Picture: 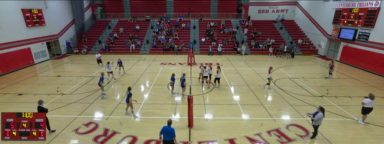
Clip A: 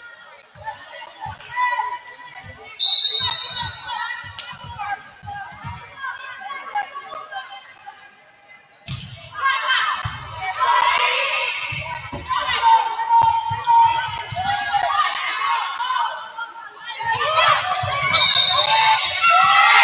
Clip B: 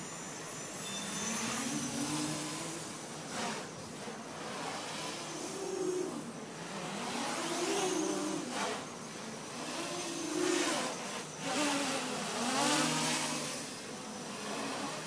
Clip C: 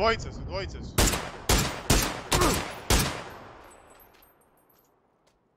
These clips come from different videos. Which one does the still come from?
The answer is A